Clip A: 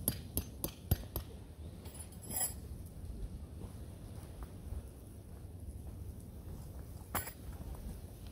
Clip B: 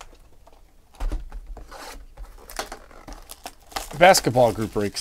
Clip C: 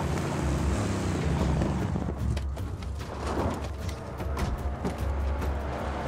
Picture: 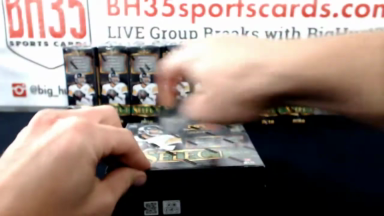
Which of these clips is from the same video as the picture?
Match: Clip B